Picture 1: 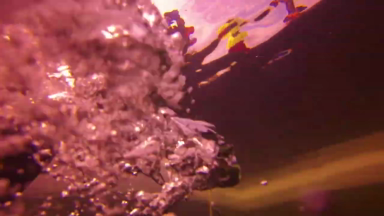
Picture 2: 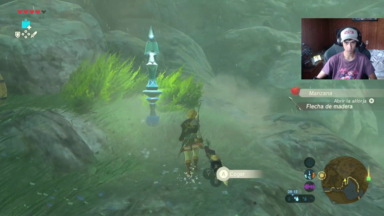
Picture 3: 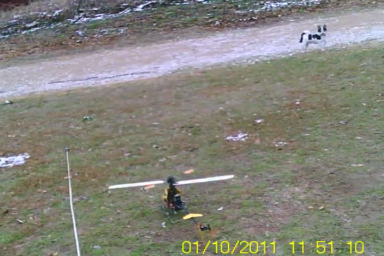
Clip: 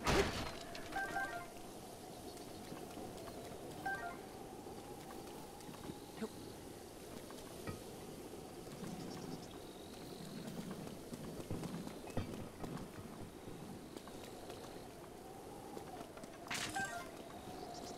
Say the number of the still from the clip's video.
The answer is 2